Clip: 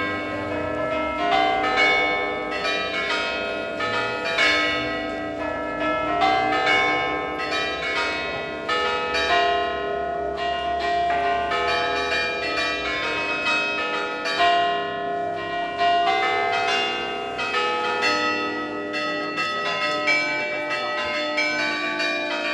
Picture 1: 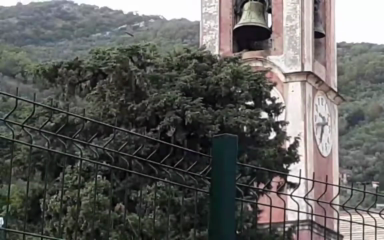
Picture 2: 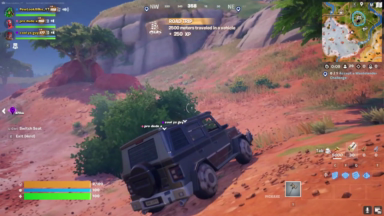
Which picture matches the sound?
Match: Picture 1